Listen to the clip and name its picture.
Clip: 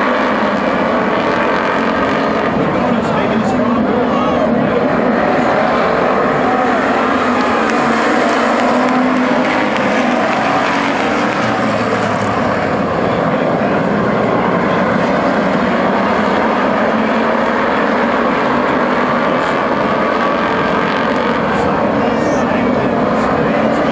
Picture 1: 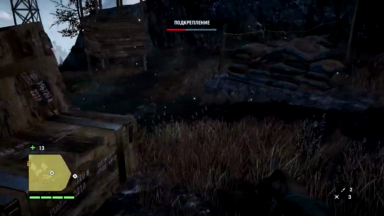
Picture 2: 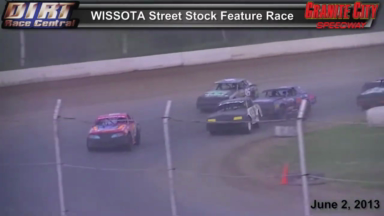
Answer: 2